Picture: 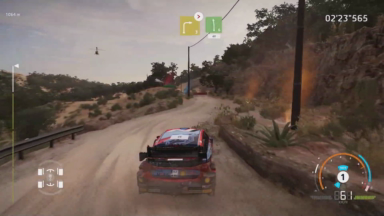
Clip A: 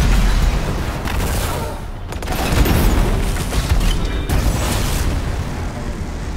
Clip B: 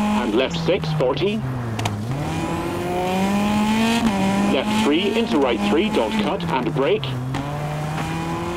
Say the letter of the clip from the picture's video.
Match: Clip B